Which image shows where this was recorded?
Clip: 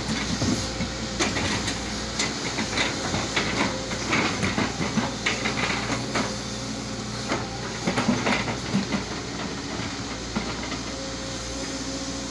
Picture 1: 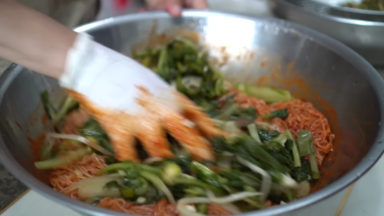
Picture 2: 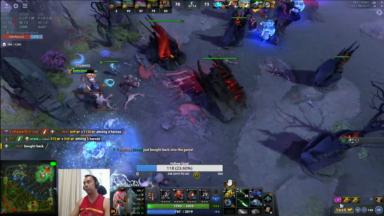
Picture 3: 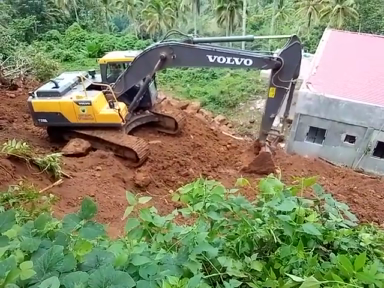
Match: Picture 3